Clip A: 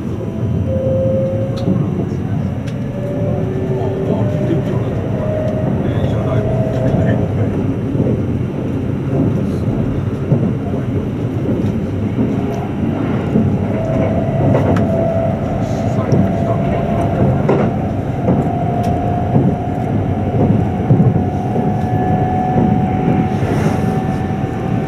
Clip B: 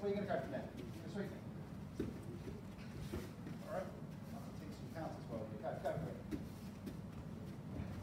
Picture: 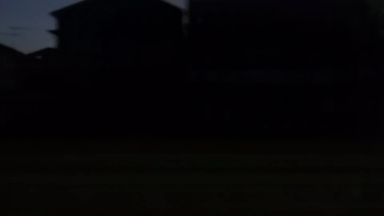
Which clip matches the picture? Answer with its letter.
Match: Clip A